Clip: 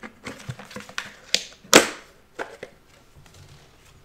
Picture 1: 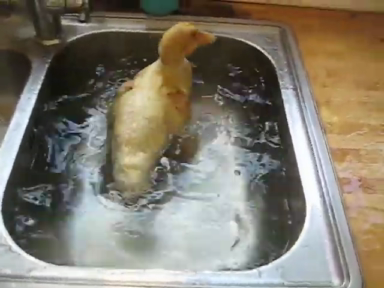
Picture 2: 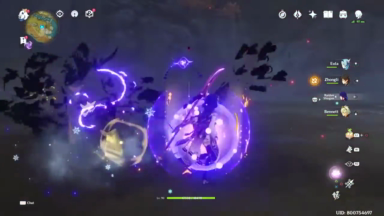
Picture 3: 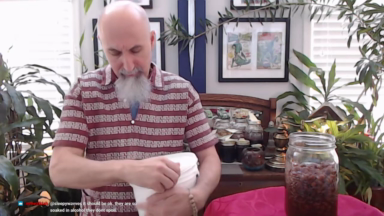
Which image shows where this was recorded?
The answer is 3